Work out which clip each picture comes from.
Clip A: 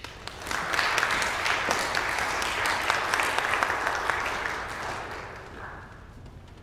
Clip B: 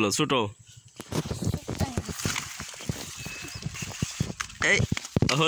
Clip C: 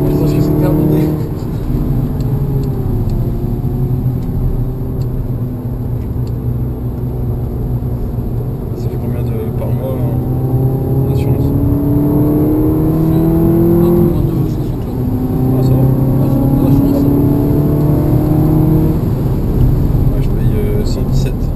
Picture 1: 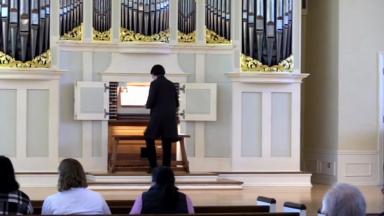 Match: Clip A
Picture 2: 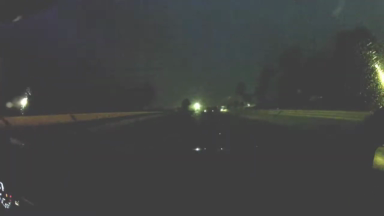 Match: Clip C